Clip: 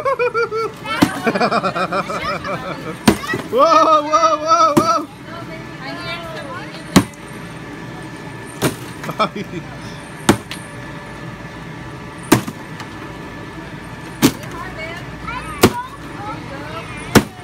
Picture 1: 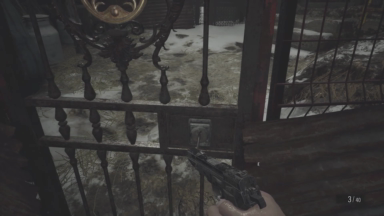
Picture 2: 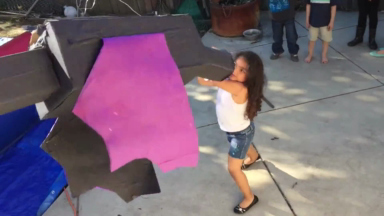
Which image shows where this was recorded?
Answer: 2